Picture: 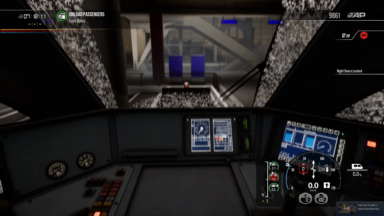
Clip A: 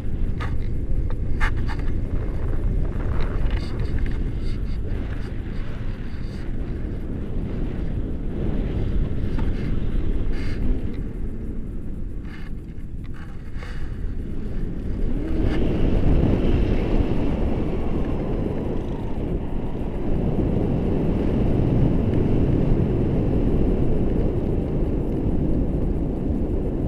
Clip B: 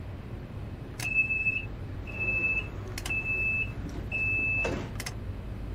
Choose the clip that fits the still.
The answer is B